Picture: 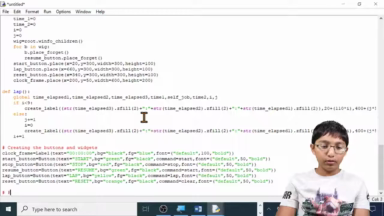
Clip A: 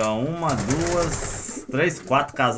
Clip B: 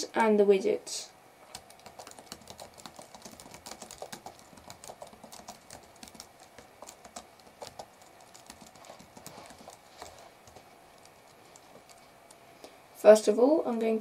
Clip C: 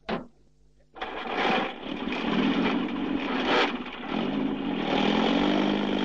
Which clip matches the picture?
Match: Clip B